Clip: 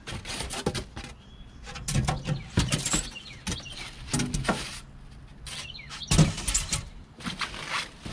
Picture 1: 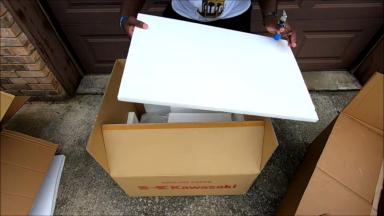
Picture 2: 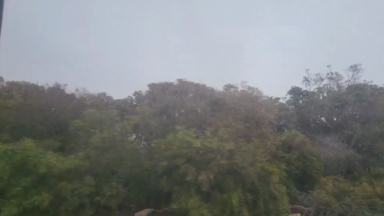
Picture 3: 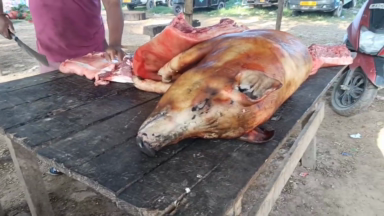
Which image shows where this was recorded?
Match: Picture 1